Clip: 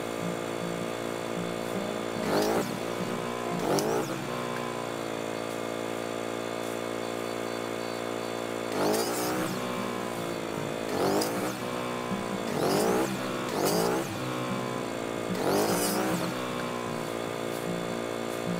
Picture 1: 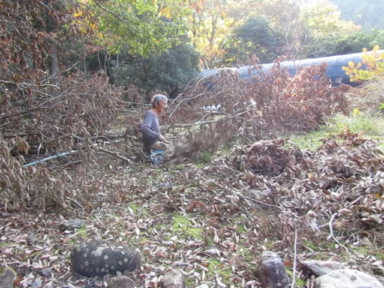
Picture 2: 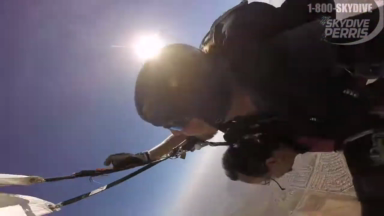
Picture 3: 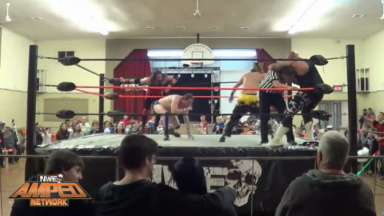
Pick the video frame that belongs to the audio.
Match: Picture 1